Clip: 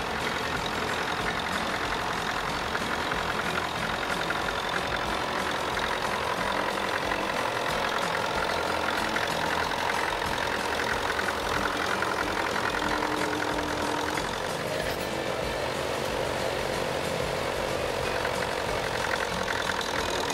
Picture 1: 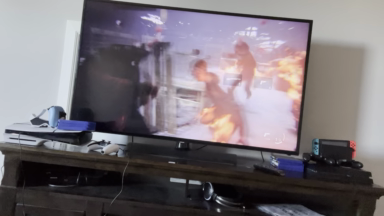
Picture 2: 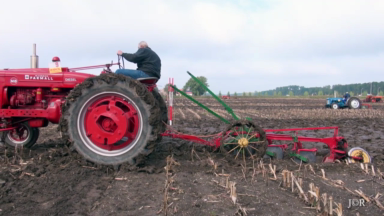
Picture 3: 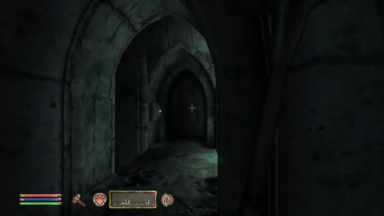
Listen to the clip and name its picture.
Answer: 2